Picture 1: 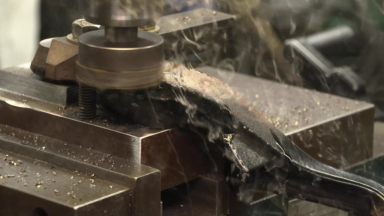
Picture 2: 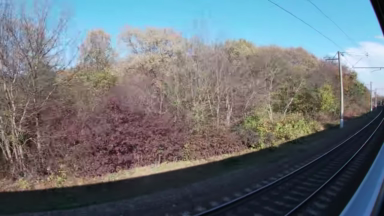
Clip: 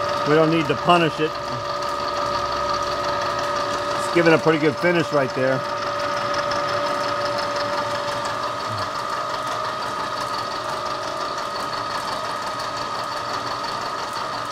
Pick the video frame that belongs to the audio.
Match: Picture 1